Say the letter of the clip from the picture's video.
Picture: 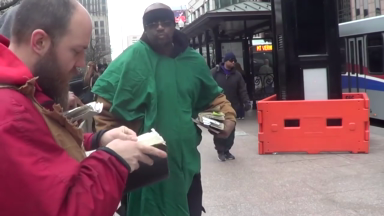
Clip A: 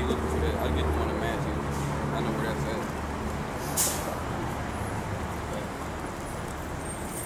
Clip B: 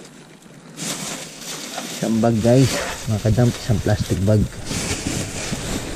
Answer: A